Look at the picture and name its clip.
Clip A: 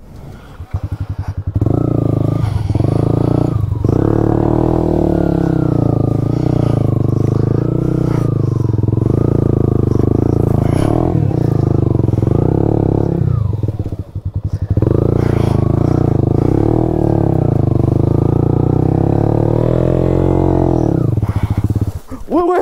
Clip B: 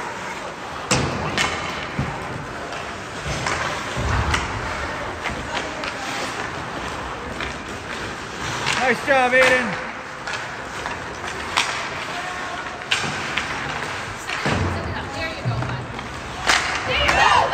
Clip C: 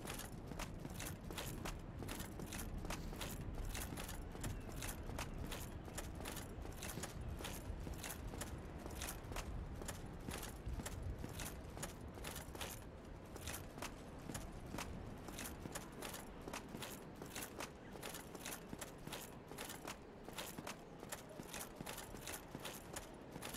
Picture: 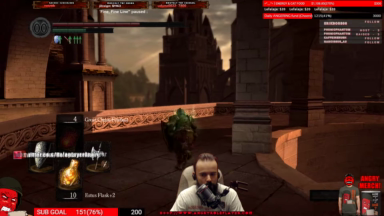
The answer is C